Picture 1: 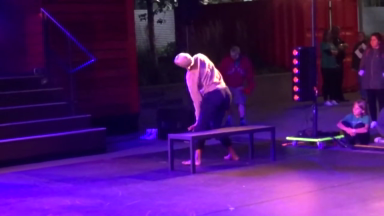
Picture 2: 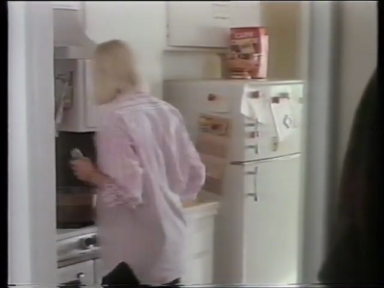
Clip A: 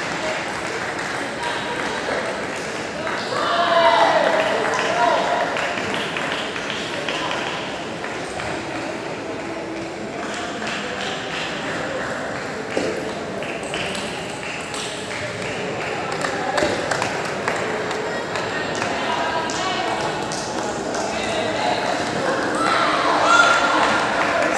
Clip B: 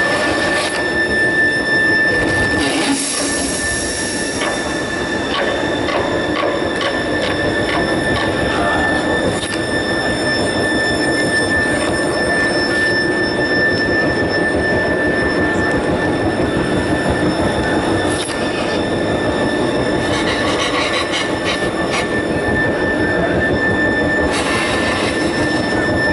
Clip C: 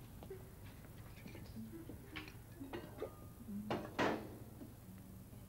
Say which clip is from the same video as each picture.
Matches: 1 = B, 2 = C